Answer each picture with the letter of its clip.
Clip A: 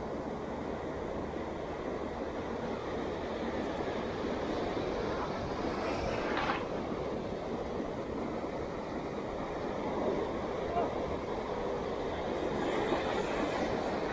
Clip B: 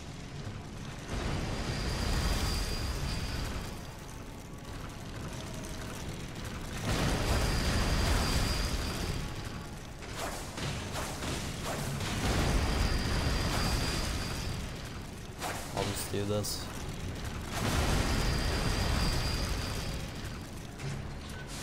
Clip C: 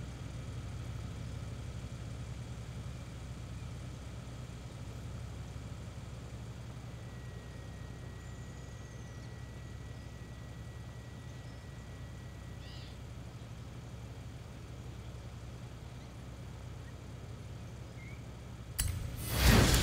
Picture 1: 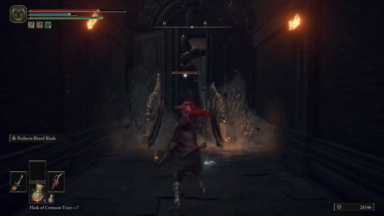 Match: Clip B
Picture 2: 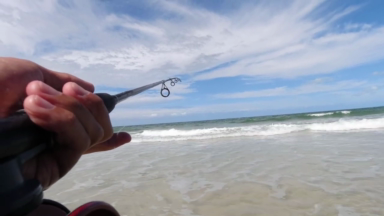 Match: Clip A